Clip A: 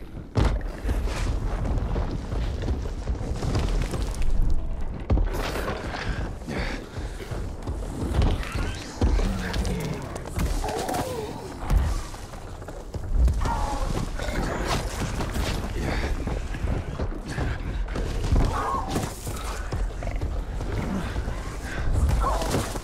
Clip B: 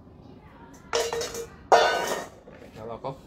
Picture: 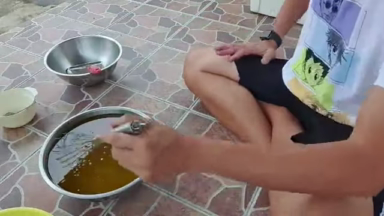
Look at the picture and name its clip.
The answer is B